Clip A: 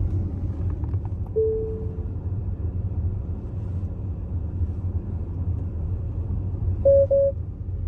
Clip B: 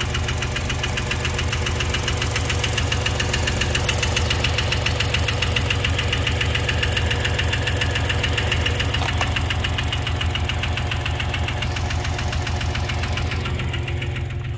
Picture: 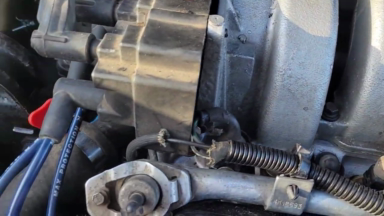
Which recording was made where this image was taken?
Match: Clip B